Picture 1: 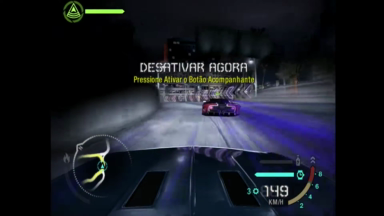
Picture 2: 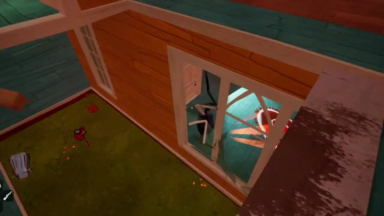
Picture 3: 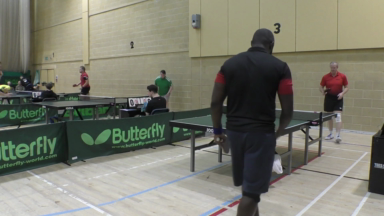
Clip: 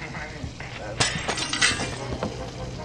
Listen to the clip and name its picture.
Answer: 2